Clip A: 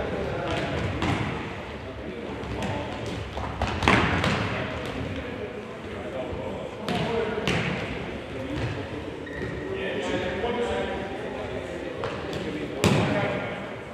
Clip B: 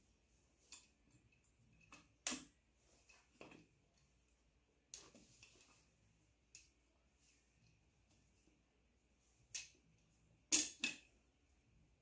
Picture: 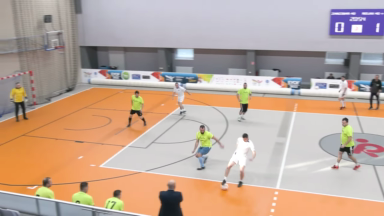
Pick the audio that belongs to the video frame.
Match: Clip A